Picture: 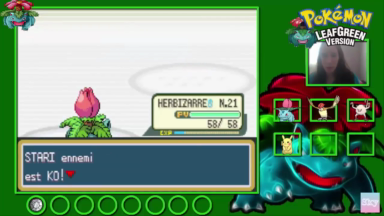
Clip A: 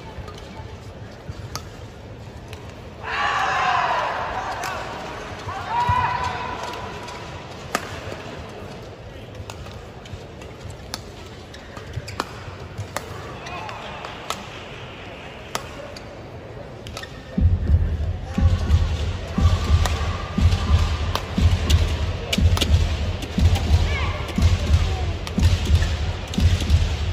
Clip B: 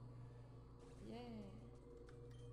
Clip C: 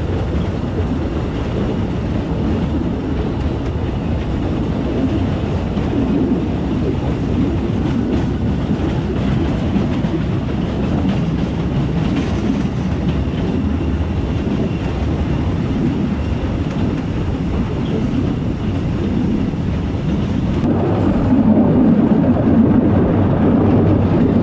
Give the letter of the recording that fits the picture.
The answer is B